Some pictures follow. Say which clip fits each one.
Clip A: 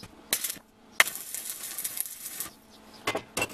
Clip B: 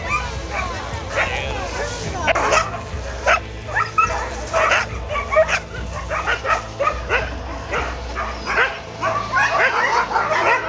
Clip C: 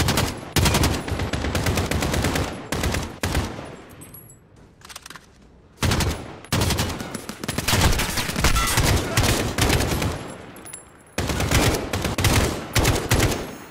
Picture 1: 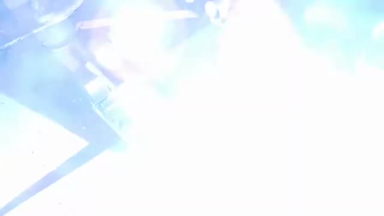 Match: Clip A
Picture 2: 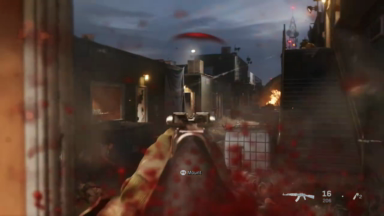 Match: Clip C